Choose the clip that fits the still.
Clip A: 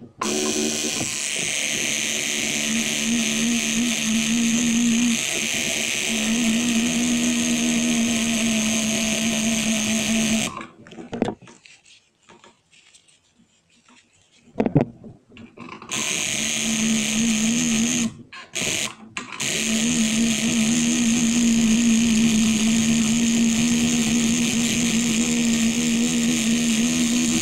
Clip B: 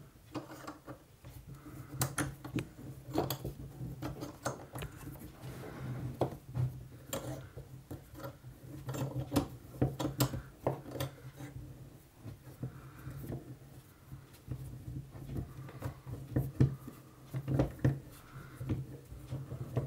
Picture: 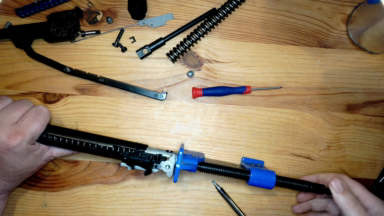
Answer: B